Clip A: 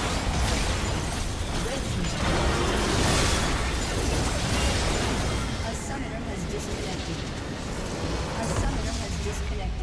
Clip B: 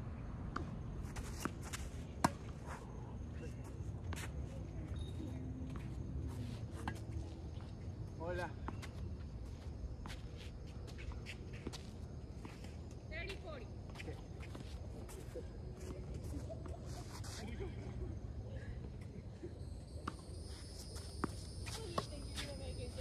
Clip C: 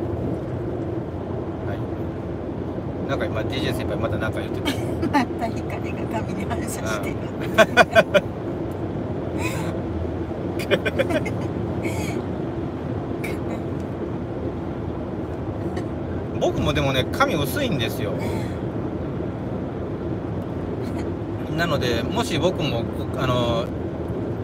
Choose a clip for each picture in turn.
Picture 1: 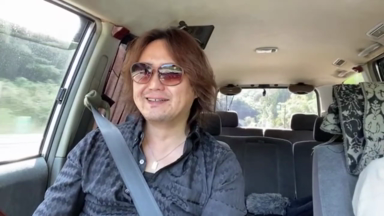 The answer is C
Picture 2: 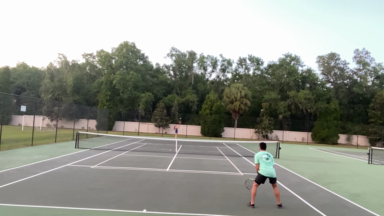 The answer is B